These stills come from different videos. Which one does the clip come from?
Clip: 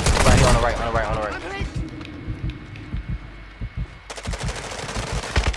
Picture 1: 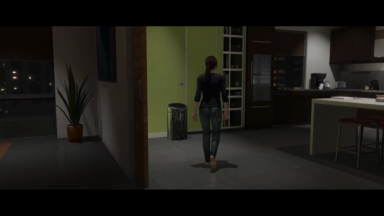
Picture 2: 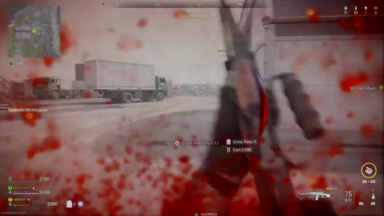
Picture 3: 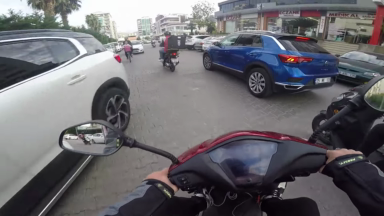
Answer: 2